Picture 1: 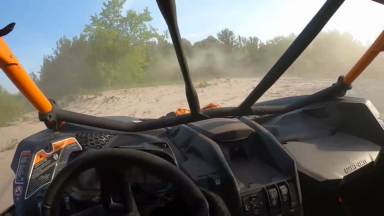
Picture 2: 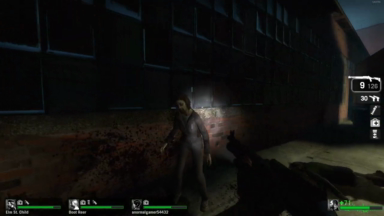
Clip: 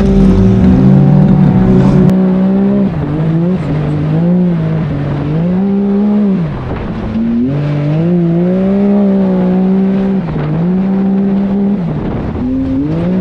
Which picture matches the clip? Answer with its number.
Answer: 1